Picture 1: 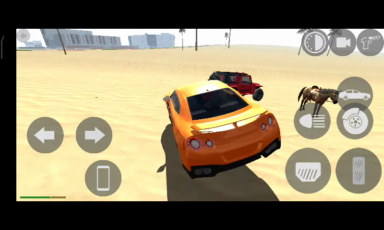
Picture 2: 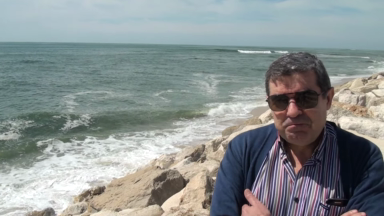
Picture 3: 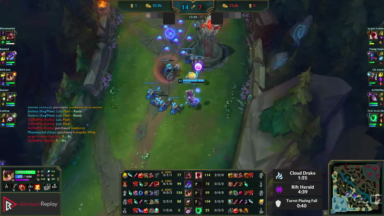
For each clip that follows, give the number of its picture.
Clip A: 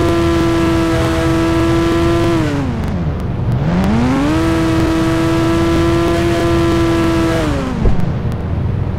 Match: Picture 1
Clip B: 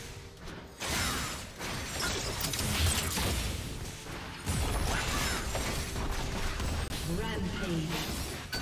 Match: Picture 3